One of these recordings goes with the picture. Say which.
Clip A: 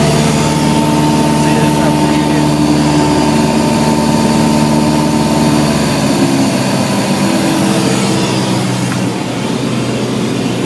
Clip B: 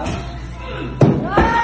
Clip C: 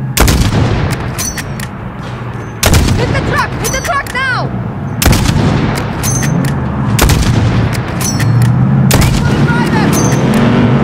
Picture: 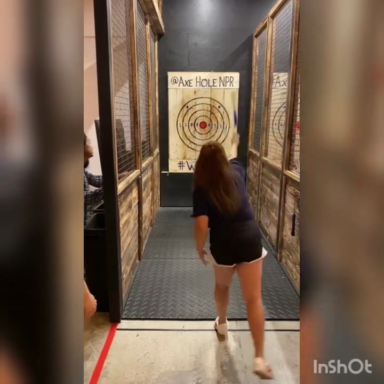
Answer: B